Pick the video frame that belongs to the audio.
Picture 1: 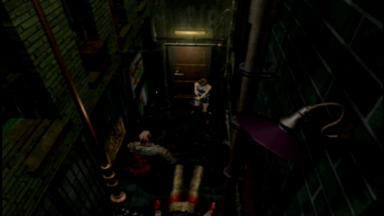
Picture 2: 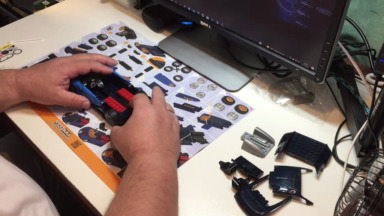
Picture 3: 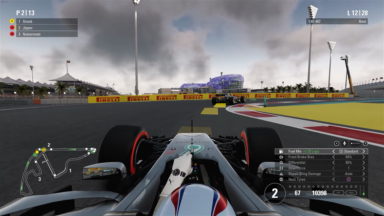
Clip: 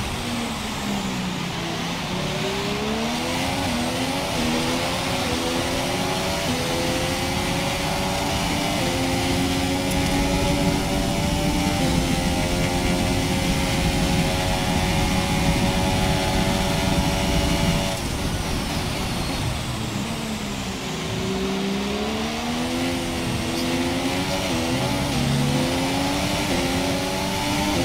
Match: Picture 3